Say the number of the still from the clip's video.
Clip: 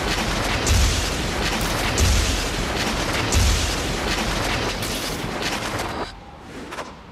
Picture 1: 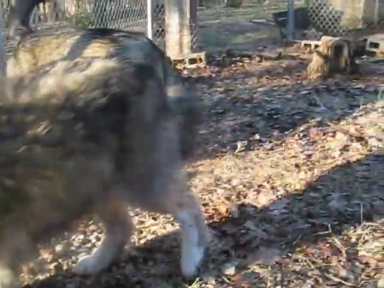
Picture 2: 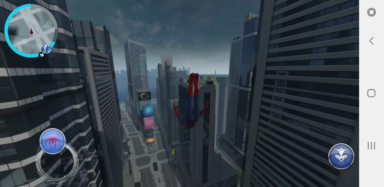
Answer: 2